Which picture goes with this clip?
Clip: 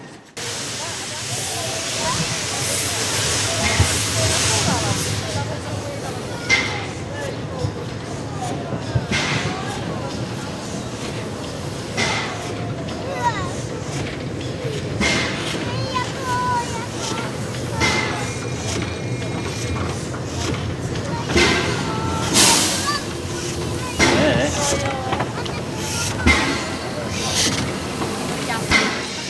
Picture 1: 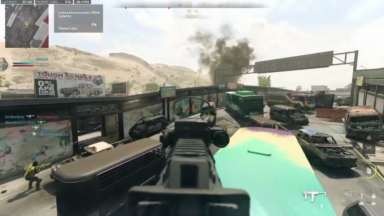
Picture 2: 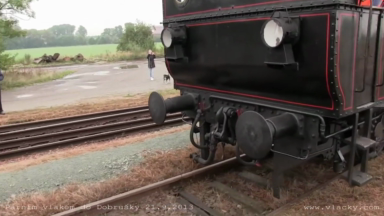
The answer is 2